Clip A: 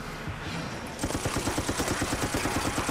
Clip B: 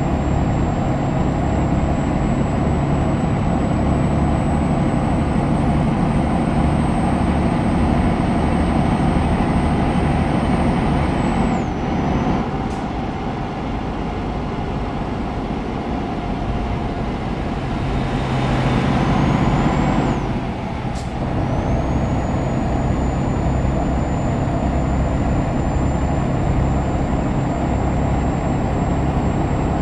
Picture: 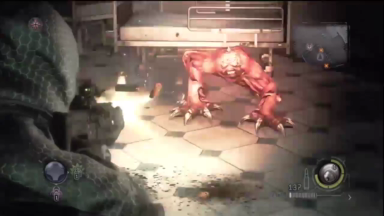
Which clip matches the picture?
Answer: A